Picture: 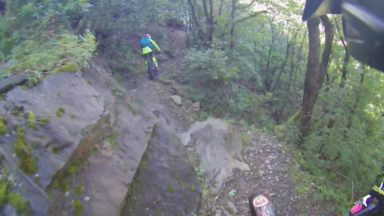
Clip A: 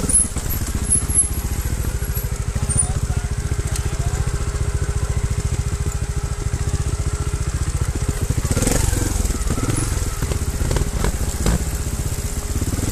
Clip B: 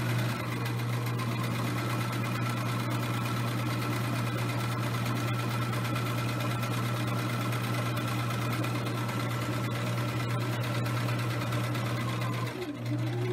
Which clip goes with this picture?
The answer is A